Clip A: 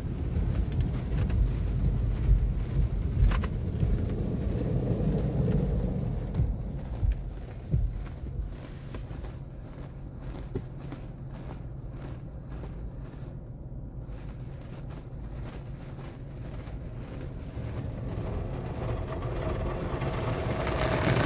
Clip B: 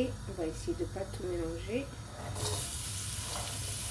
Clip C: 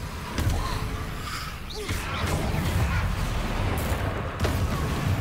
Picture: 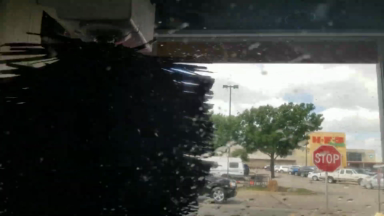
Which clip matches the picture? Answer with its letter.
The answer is A